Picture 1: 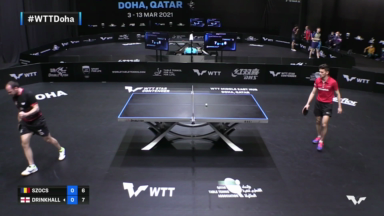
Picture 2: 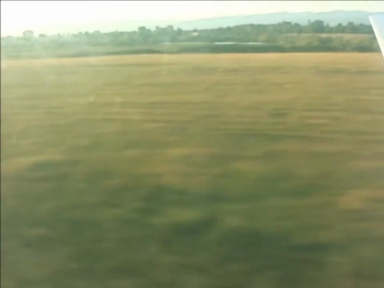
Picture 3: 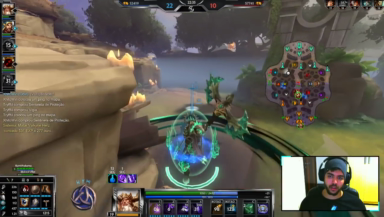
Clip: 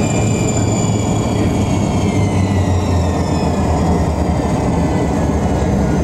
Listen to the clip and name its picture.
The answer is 2